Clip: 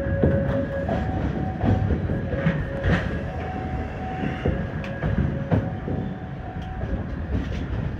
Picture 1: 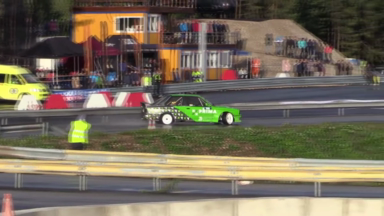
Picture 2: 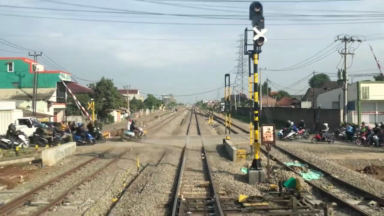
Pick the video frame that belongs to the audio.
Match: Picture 2